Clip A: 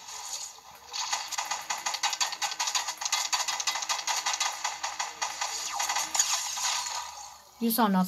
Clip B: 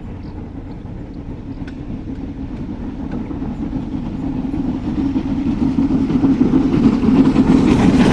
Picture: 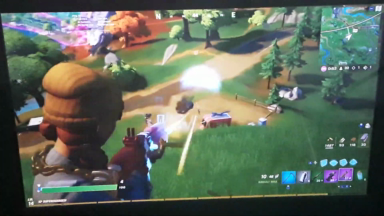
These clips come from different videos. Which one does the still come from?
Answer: A